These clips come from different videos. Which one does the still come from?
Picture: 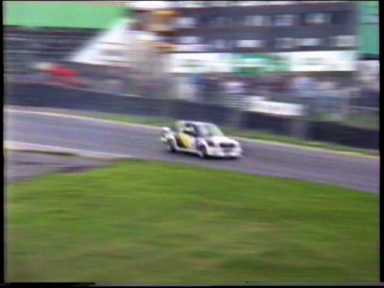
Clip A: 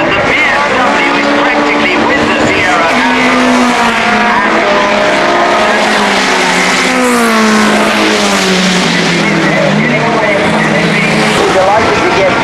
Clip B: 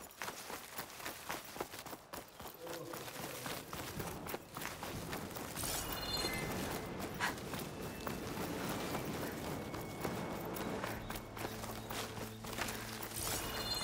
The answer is A